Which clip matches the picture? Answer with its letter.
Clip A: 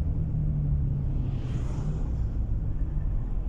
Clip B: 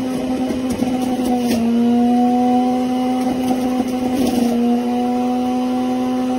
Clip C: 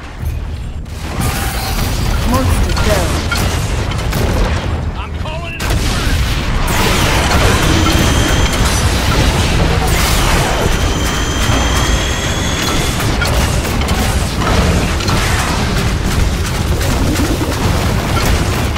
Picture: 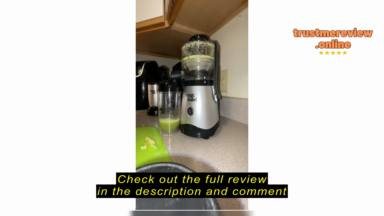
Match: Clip B